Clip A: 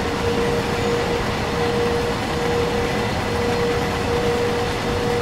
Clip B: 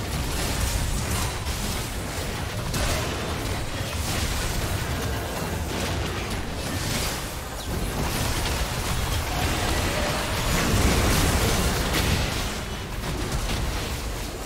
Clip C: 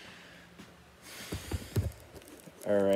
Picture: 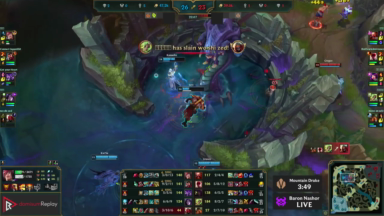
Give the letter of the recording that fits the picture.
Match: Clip B